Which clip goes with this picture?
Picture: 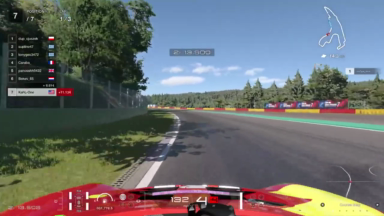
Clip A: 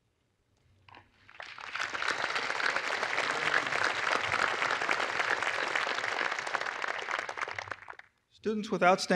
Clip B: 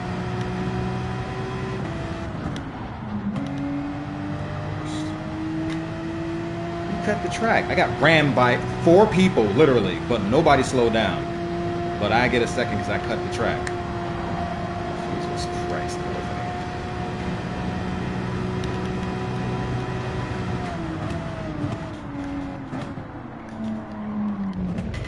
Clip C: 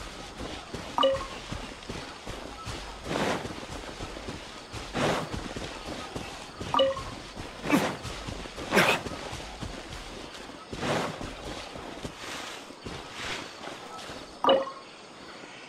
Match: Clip B